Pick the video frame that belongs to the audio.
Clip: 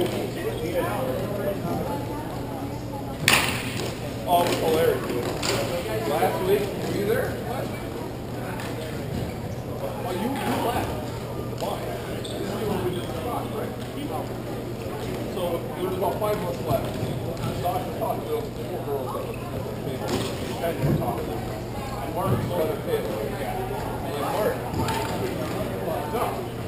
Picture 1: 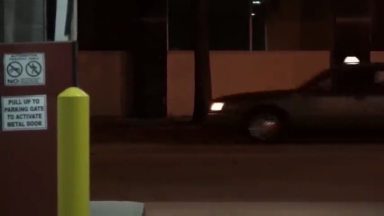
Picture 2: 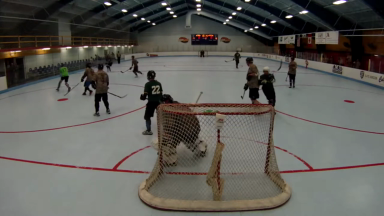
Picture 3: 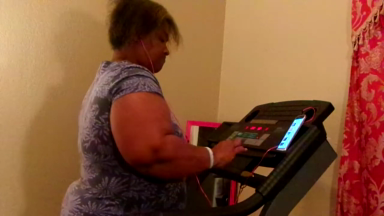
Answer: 2